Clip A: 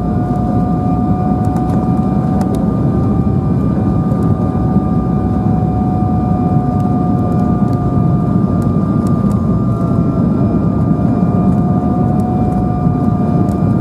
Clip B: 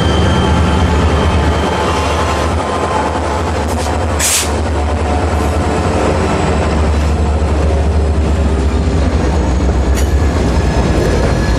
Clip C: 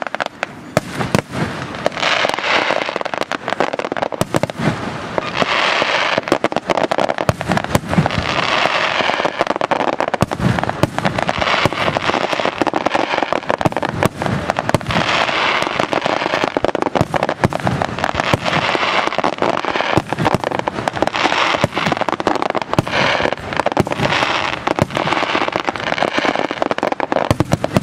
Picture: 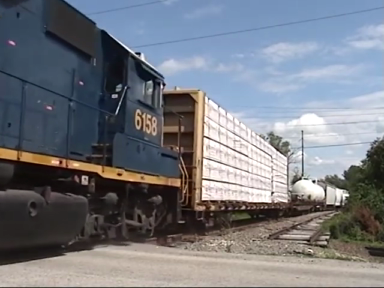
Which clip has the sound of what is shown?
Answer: B